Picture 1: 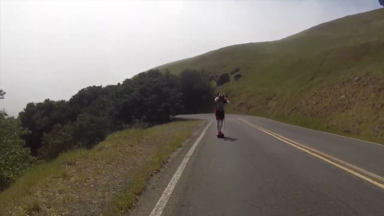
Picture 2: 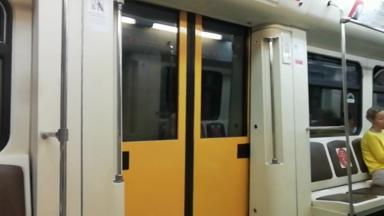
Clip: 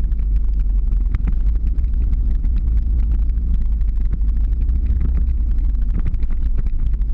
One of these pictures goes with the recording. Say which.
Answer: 1